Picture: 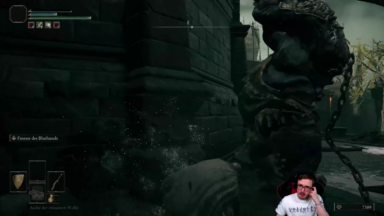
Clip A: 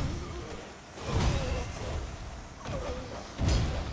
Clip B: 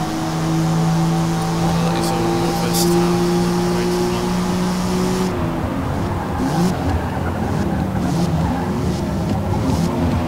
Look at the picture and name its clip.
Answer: A